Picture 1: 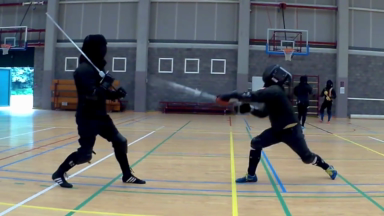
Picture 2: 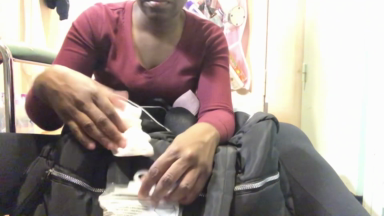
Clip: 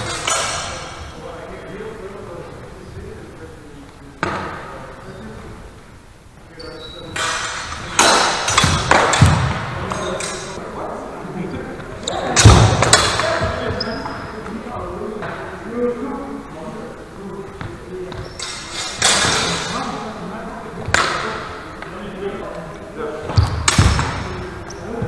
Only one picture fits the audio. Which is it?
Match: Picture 1